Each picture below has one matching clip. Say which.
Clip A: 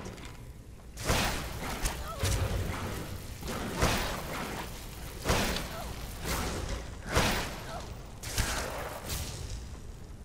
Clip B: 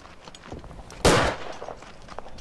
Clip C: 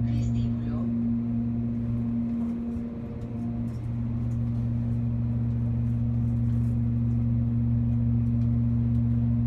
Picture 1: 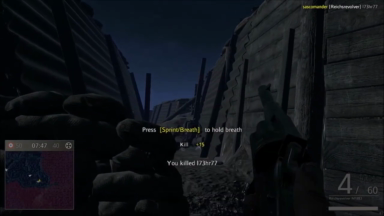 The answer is B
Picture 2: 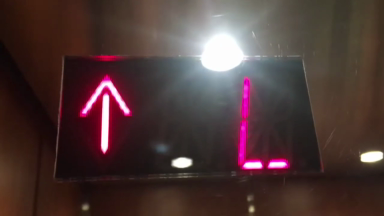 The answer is C